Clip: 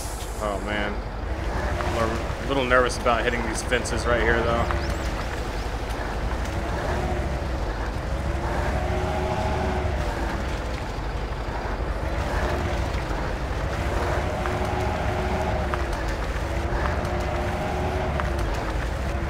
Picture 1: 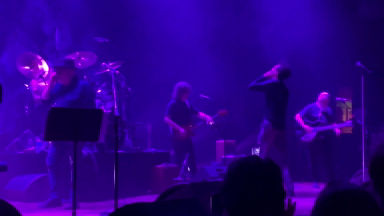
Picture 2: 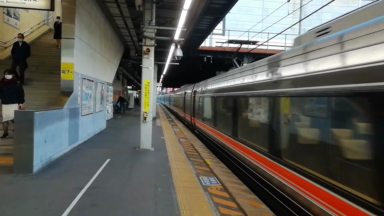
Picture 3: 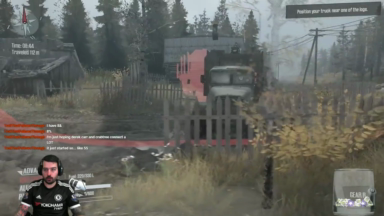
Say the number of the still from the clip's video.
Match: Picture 3